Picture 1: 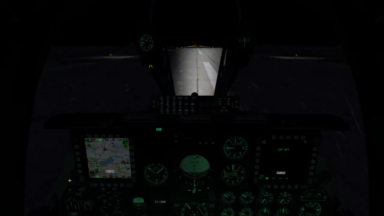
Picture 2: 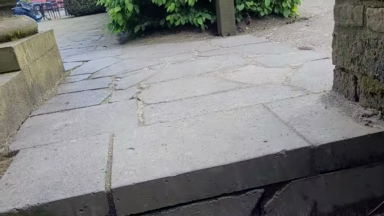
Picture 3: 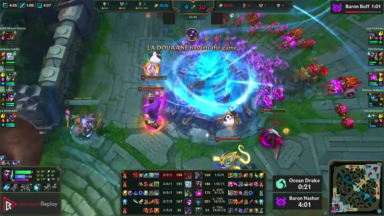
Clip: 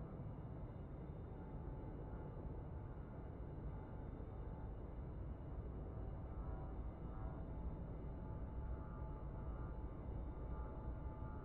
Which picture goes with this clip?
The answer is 1